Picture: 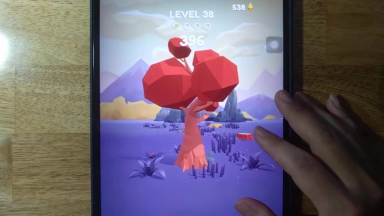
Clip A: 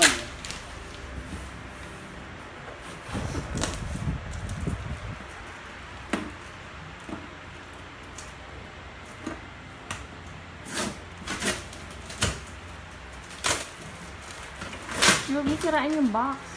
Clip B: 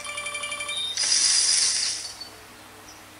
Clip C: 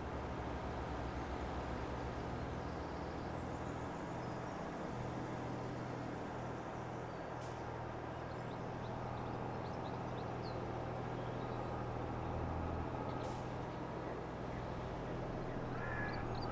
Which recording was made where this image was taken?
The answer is B